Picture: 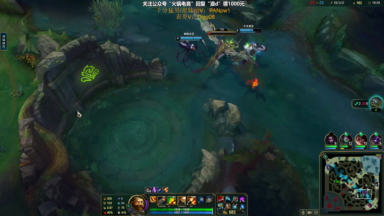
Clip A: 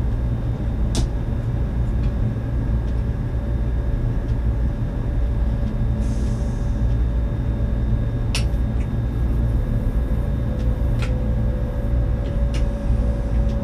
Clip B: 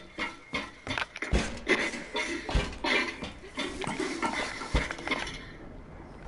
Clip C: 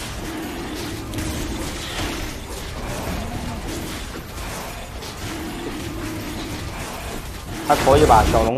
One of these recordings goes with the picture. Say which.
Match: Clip C